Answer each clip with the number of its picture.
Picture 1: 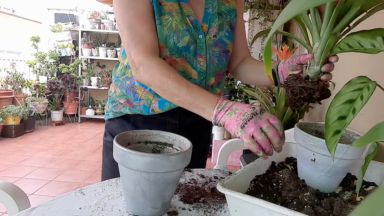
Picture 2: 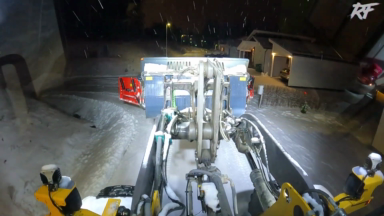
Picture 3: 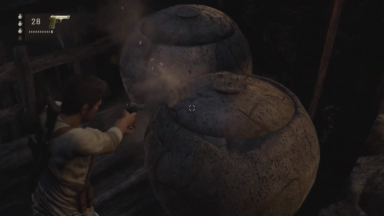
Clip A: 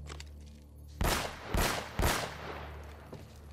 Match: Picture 3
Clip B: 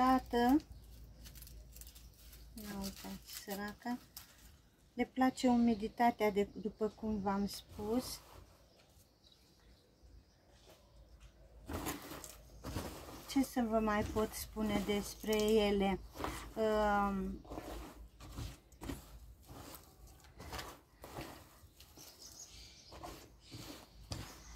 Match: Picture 1